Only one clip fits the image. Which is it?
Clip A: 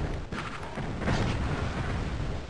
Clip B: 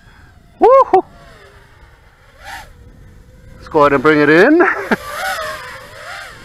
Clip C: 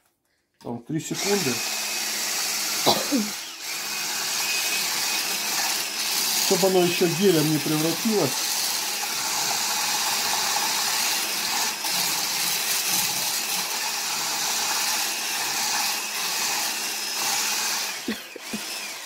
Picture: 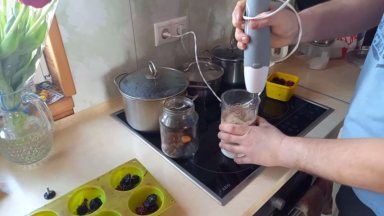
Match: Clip C